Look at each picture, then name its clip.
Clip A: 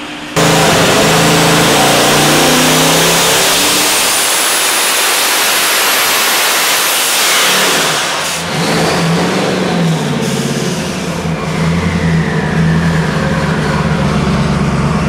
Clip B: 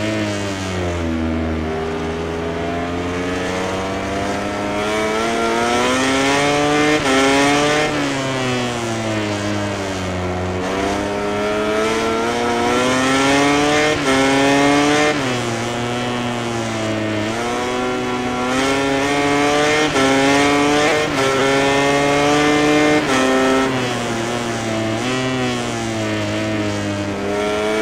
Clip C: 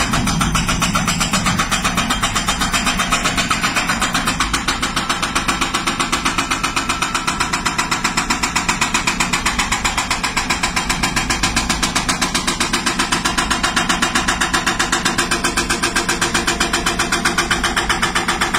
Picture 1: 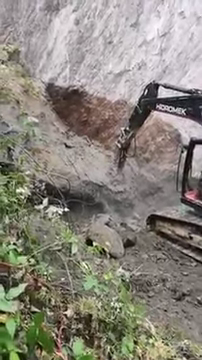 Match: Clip C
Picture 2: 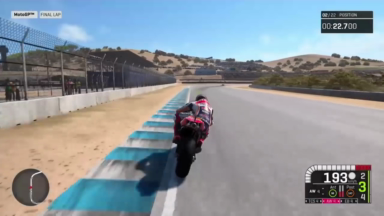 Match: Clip B